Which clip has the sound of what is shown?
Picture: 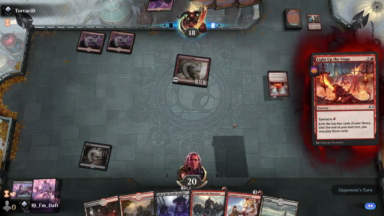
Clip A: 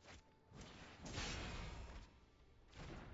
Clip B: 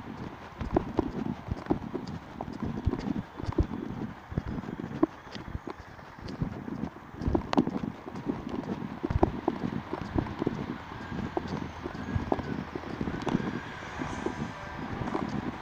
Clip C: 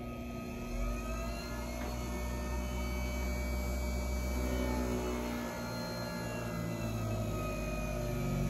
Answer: A